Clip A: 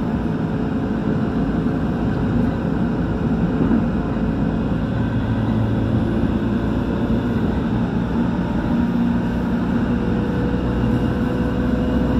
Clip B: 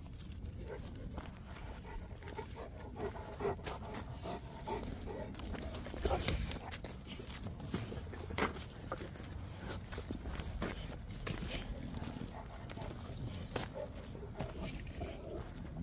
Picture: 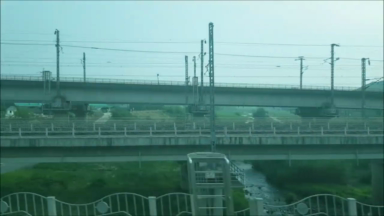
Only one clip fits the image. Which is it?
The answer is A